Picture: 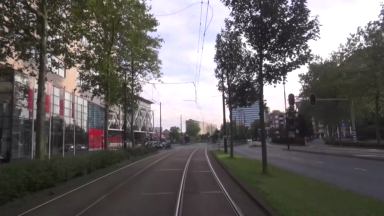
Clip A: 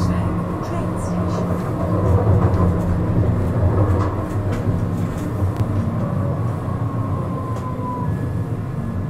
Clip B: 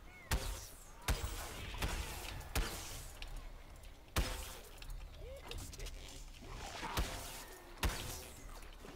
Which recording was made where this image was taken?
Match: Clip A